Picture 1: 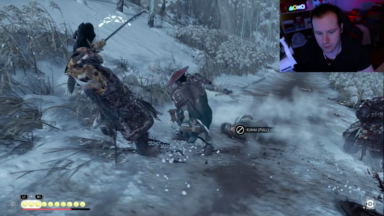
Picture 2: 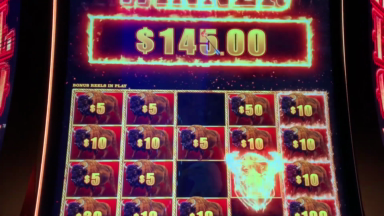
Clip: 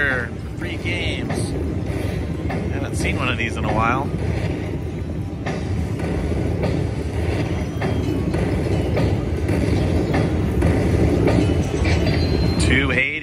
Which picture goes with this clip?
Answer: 2